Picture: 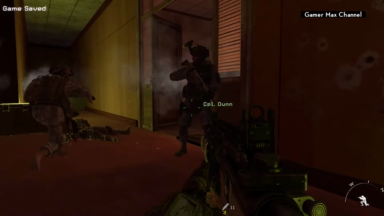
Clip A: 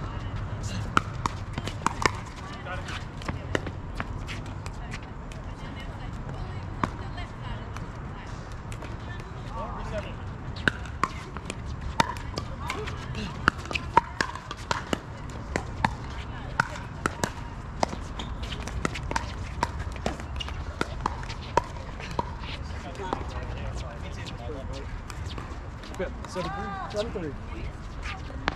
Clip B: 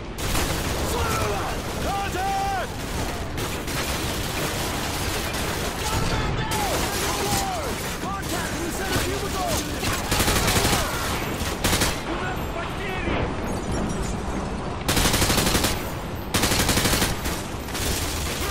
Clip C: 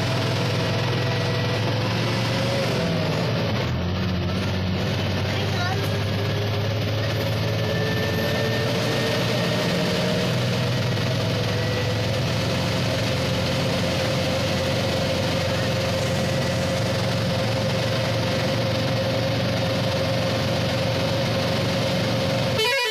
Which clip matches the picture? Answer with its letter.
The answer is B